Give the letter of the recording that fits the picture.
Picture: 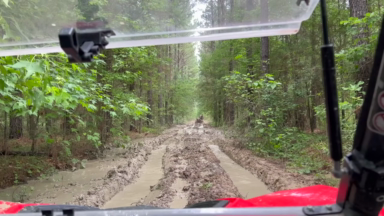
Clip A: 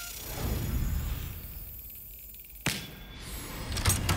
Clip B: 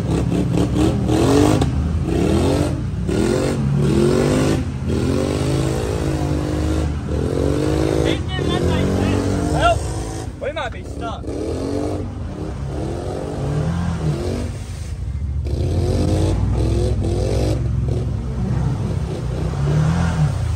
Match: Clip B